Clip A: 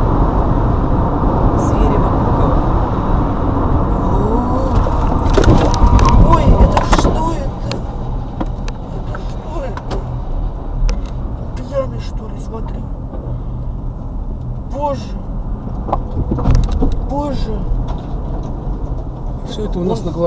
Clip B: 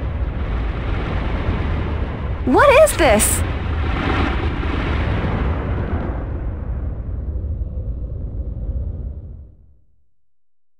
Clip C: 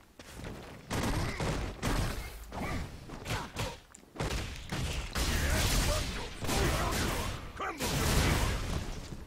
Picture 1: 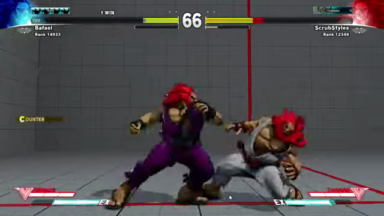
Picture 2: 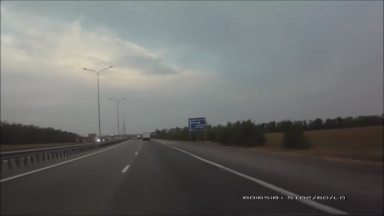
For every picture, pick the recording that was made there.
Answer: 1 C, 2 A